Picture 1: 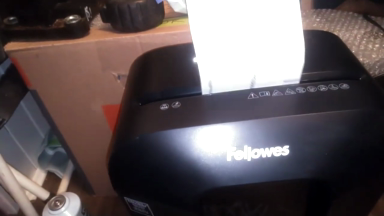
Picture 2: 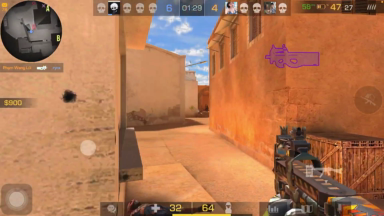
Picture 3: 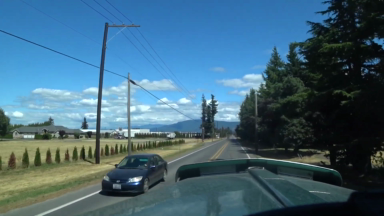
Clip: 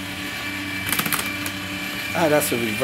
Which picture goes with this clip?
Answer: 1